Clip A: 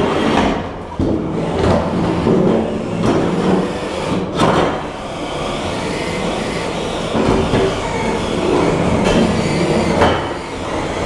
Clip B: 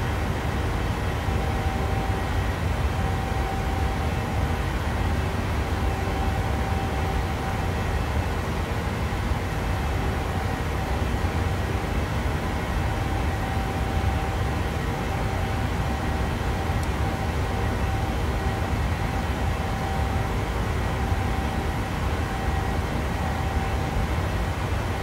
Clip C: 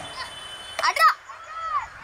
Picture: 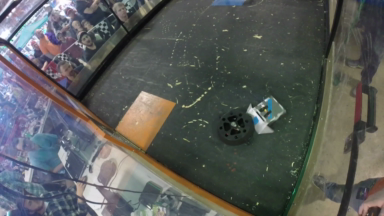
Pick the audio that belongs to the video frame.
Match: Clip A